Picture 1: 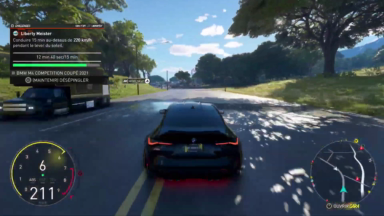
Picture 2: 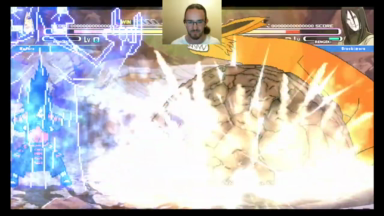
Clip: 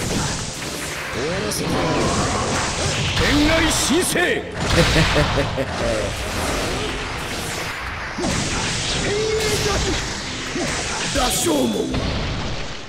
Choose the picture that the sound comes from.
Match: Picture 2